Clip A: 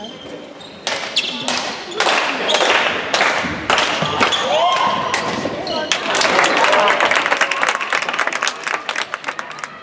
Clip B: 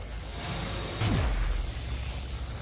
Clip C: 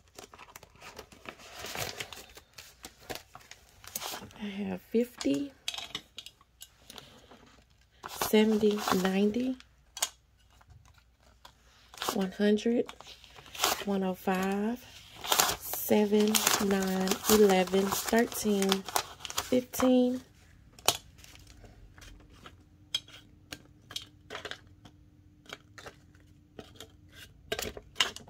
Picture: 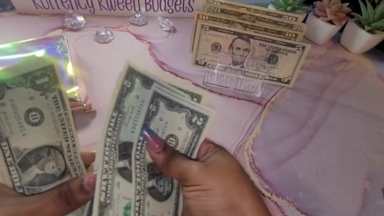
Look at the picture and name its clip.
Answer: C